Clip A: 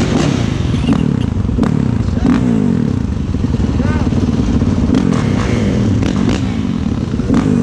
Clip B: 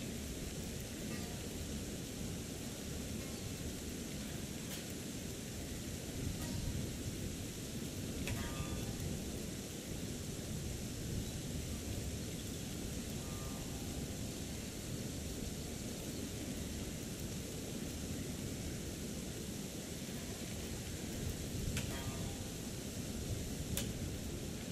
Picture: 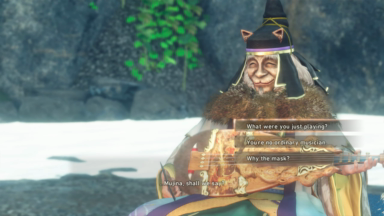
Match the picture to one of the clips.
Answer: B